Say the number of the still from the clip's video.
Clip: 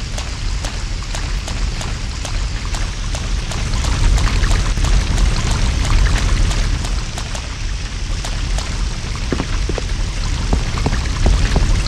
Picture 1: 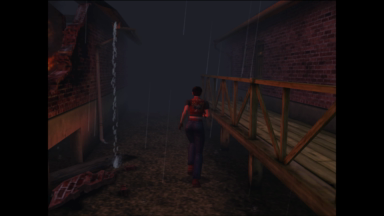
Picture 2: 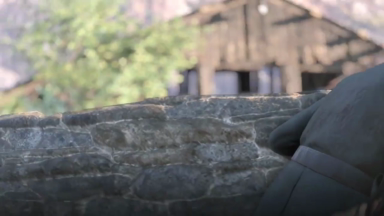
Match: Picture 1